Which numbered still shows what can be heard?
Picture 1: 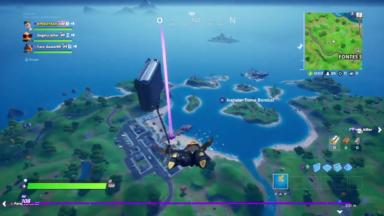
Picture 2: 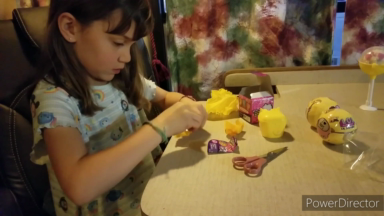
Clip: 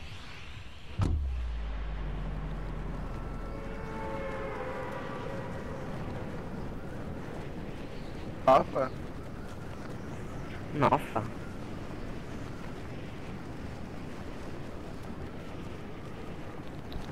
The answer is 1